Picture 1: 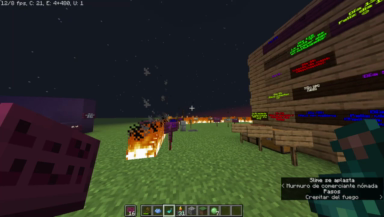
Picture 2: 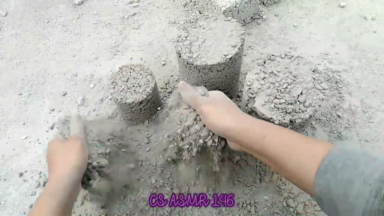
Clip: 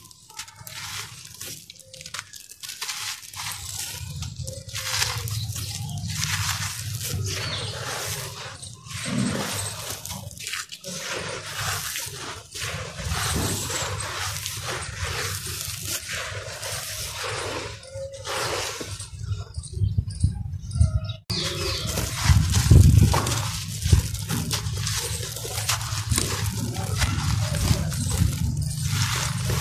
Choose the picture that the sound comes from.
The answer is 2